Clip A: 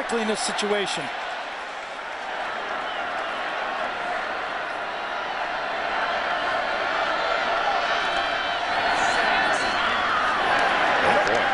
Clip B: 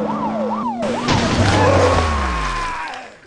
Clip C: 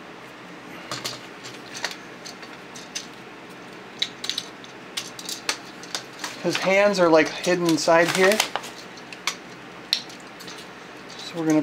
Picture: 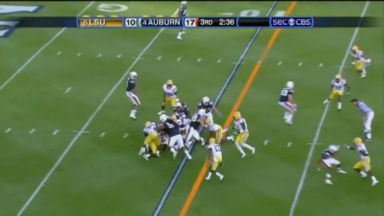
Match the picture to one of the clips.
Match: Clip A